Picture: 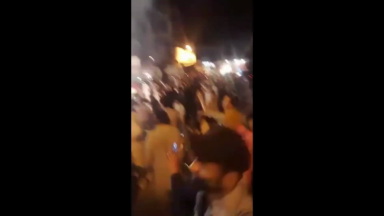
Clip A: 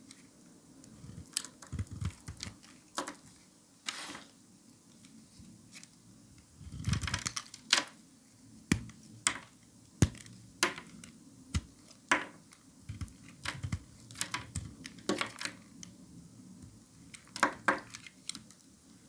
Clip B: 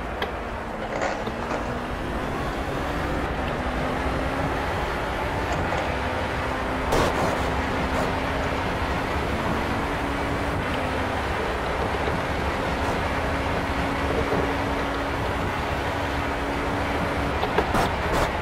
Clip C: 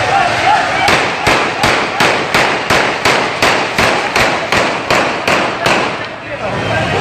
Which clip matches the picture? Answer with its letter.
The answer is C